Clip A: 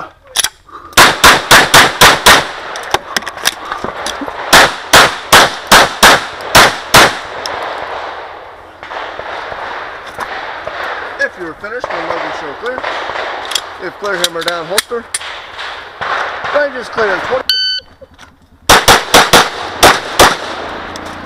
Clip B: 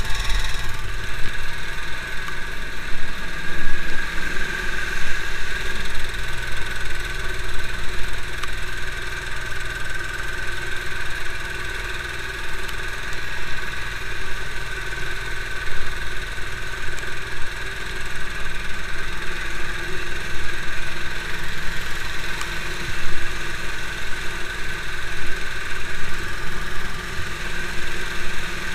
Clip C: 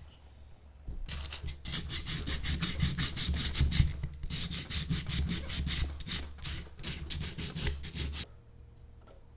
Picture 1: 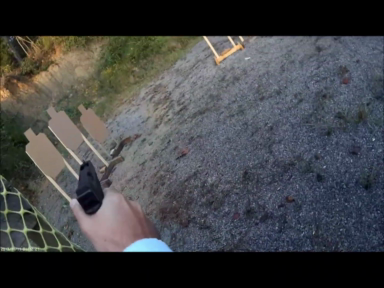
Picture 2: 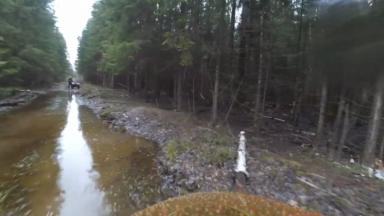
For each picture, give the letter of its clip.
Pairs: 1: A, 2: B